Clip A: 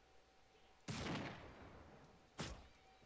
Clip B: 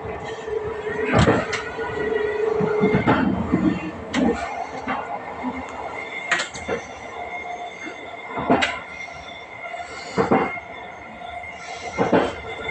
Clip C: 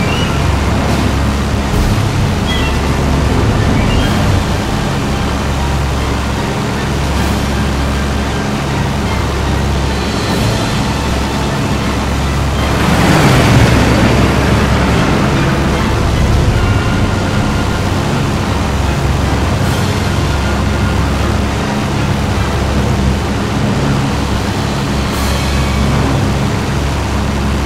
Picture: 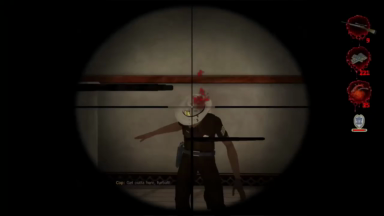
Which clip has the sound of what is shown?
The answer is A